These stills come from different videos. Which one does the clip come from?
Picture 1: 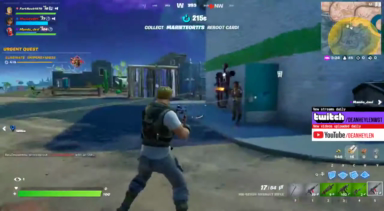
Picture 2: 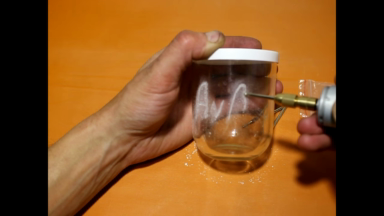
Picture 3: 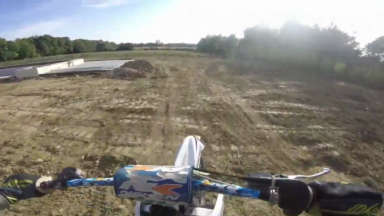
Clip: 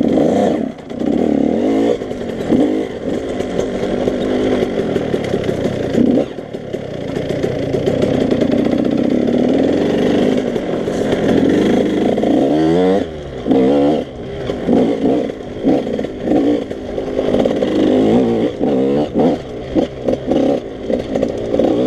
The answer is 3